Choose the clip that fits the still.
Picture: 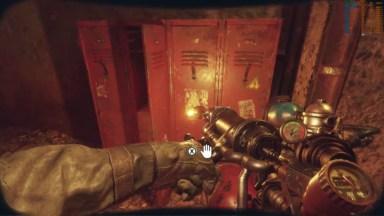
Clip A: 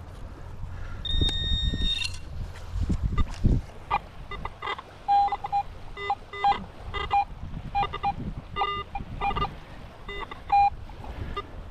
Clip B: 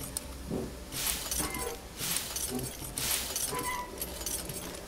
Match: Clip B